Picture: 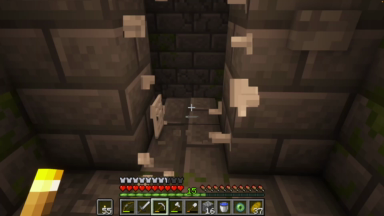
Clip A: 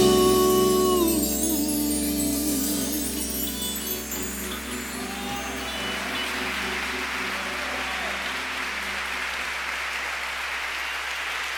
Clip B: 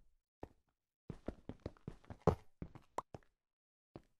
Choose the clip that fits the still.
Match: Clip B